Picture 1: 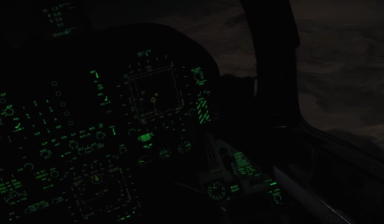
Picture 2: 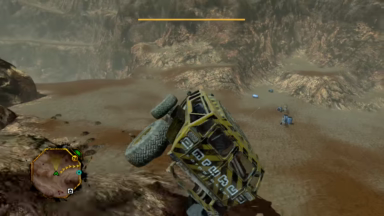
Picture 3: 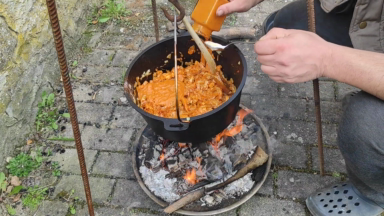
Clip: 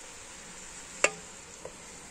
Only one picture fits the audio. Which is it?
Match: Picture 3